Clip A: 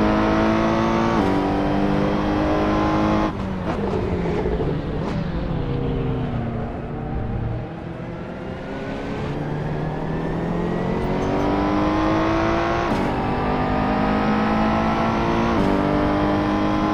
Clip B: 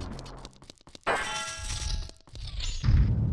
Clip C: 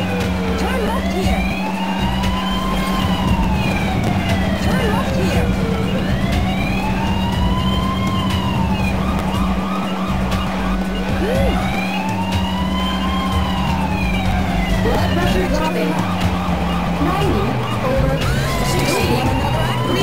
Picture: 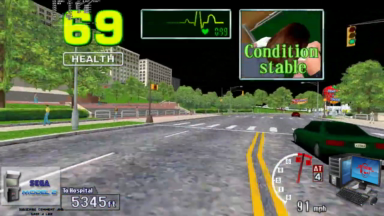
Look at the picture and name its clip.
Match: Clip C